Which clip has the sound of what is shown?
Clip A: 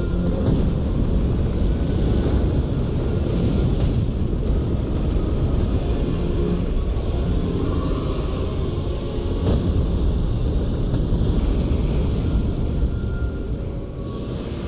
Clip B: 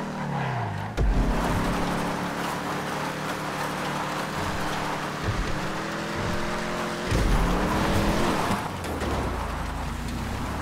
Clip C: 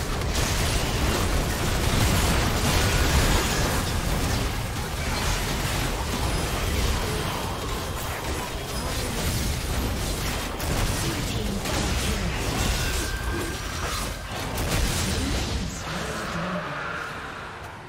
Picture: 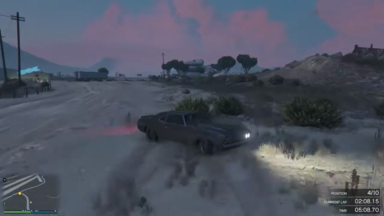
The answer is B